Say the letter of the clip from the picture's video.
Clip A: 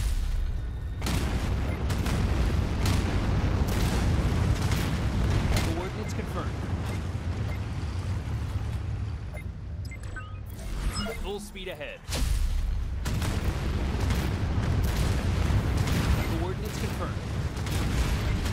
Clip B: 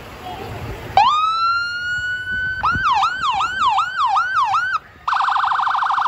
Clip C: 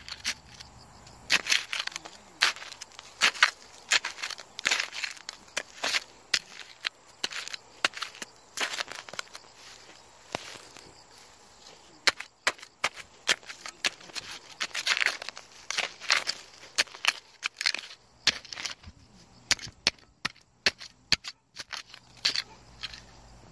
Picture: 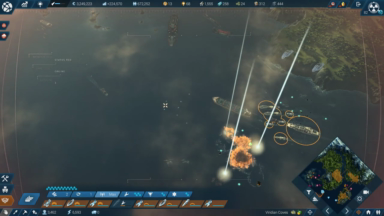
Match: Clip A